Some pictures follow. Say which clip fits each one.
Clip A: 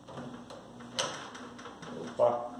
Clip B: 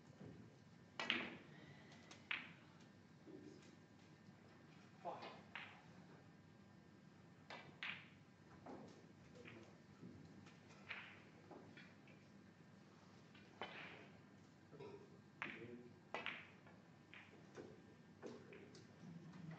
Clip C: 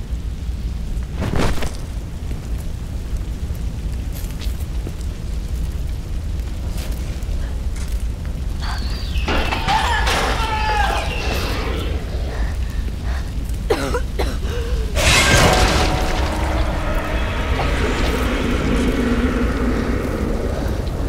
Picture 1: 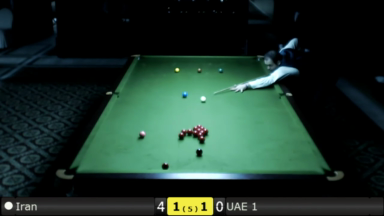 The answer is B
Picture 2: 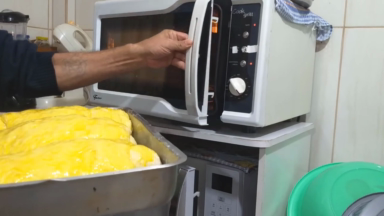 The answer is A